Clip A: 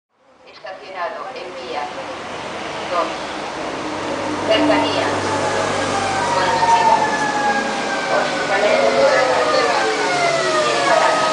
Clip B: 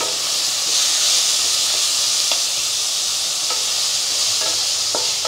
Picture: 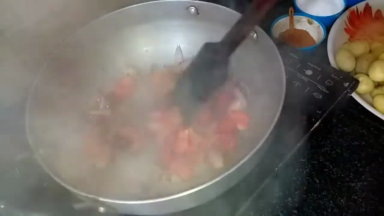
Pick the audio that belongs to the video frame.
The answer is B